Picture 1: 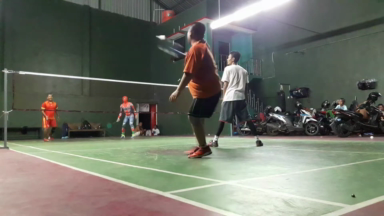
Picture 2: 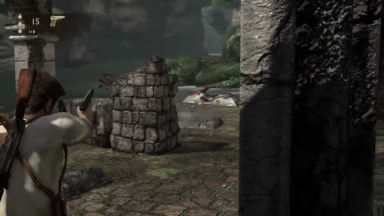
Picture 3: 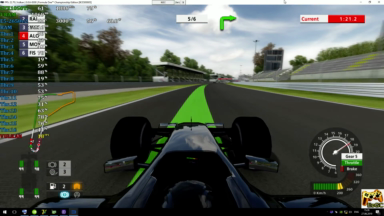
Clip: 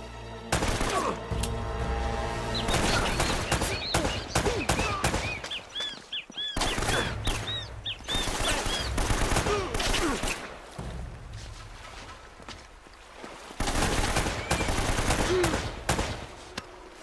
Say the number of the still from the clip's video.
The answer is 2